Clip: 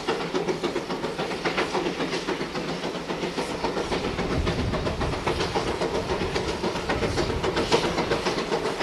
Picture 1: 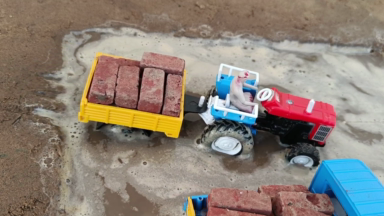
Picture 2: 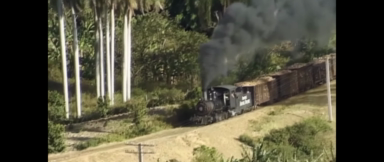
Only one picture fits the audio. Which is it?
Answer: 2